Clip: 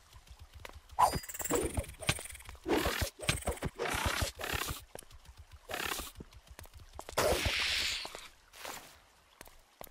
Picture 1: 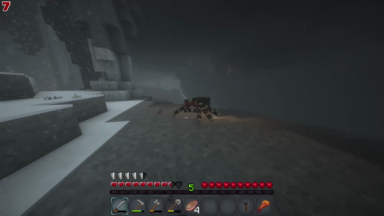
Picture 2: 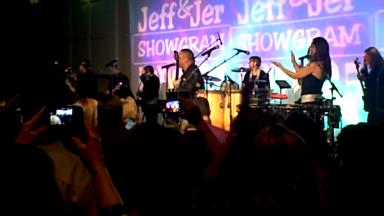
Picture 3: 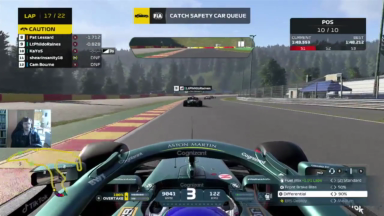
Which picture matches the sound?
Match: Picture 1